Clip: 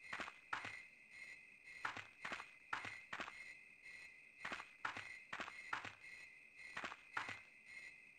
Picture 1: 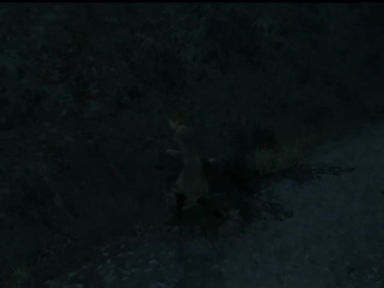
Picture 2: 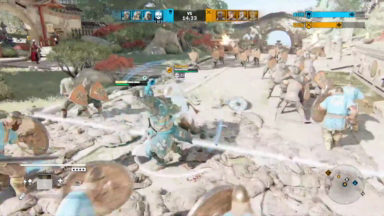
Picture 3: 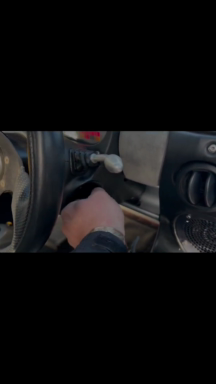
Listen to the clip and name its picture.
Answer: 1